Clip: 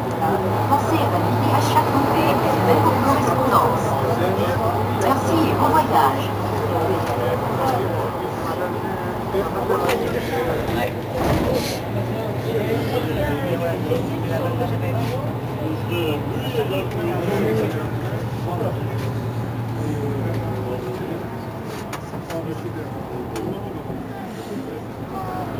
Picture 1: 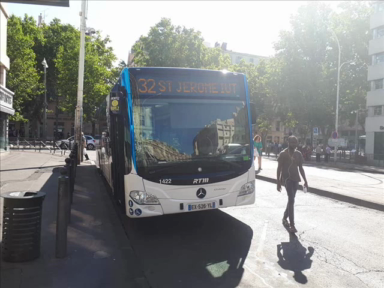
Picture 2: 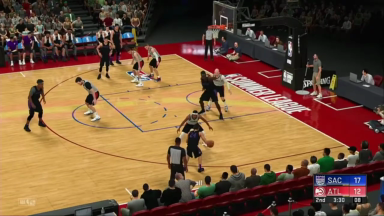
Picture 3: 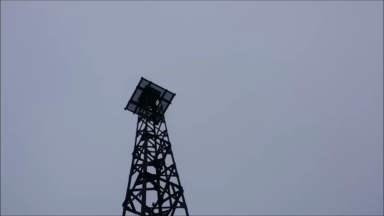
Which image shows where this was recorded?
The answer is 1